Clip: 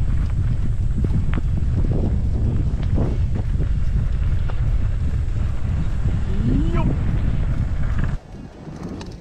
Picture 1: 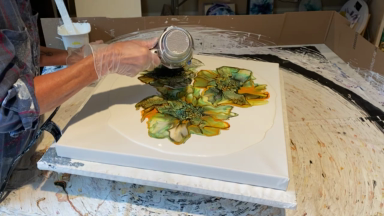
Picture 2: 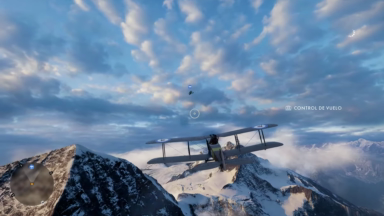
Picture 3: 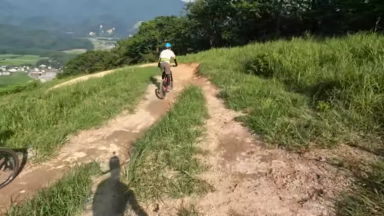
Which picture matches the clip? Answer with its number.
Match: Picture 3